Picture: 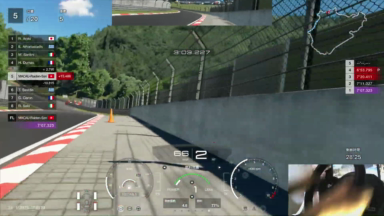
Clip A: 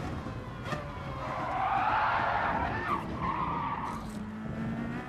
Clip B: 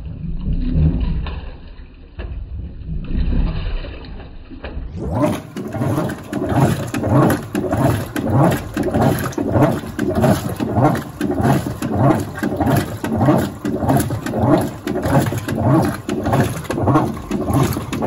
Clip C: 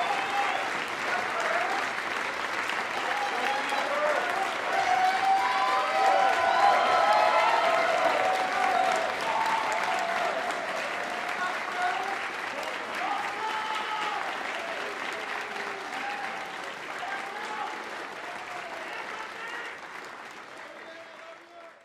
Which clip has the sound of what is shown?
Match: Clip A